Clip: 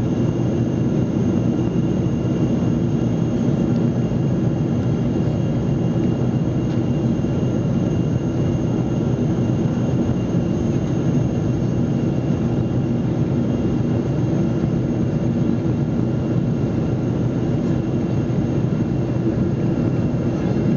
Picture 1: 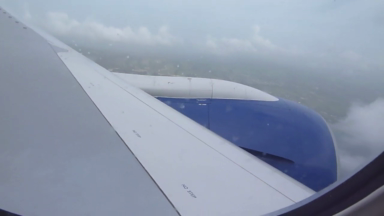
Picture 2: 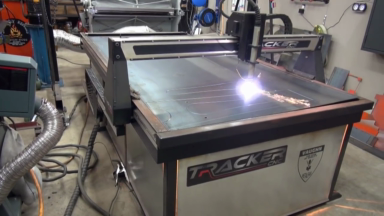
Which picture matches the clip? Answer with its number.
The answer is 1